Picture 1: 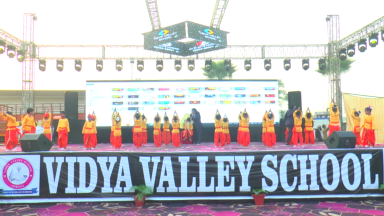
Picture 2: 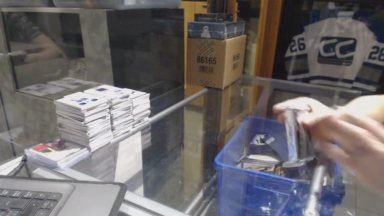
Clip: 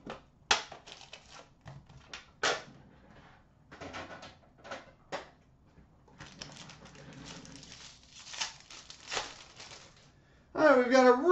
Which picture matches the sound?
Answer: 2